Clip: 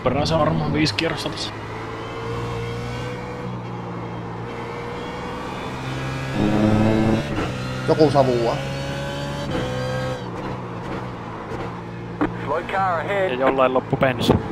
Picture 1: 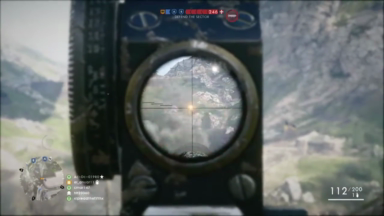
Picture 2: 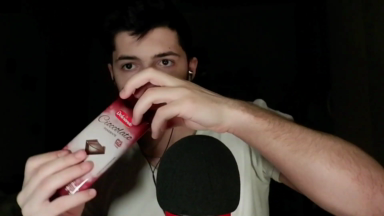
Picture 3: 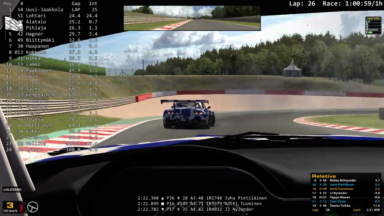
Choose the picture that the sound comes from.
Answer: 3